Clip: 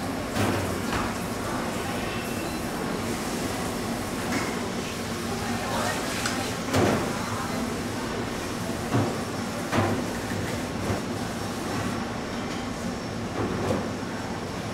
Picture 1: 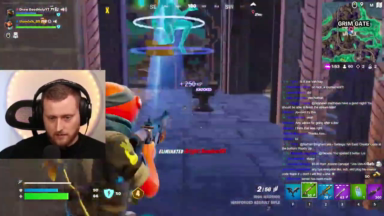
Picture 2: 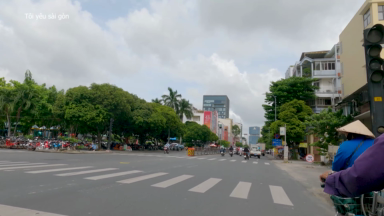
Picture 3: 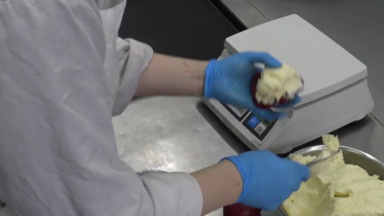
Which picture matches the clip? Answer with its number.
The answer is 3